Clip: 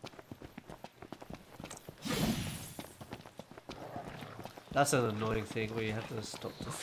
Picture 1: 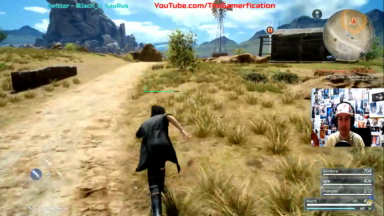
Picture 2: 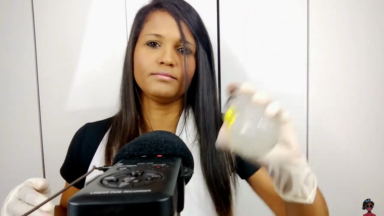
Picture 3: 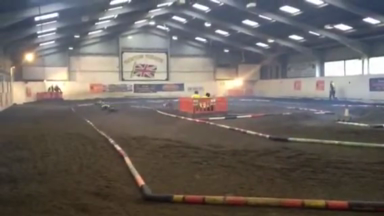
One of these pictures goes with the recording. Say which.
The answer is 1